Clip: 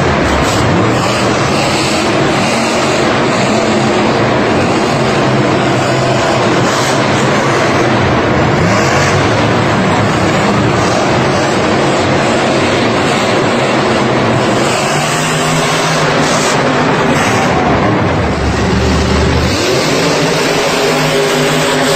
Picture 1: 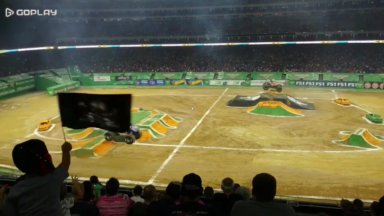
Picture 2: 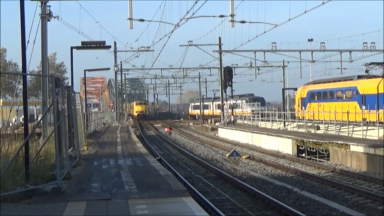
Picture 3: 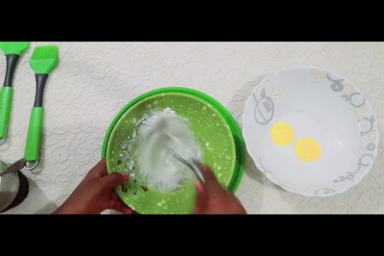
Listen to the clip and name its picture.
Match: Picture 1